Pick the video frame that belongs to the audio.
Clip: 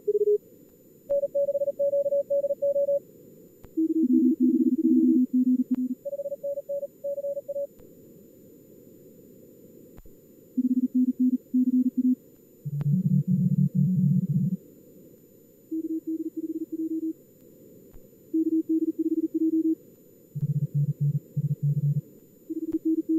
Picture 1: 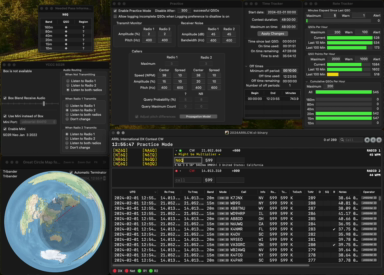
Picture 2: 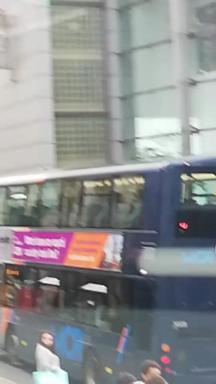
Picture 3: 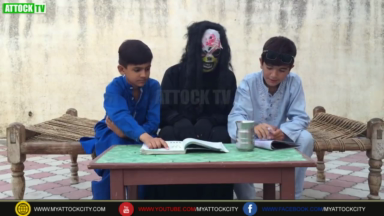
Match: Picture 1